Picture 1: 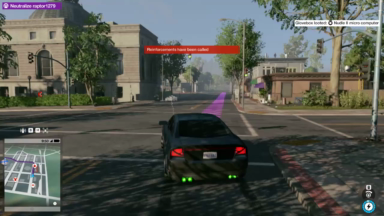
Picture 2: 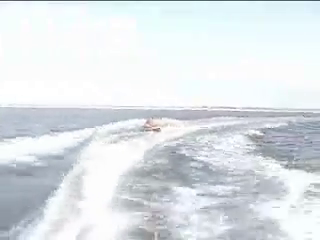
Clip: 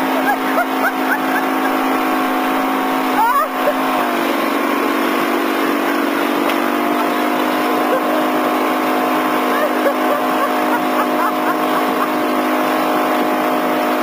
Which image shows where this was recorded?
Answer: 2